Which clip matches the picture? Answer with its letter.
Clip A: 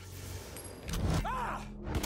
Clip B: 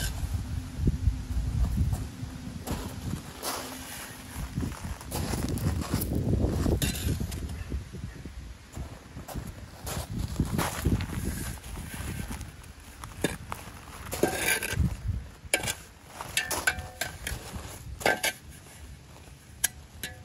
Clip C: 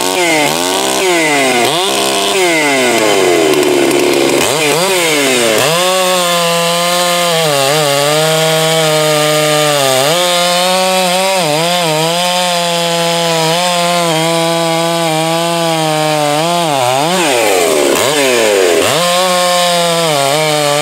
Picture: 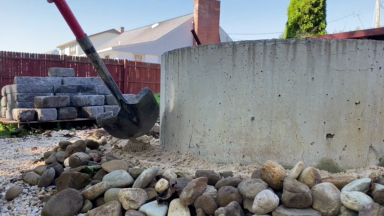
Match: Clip B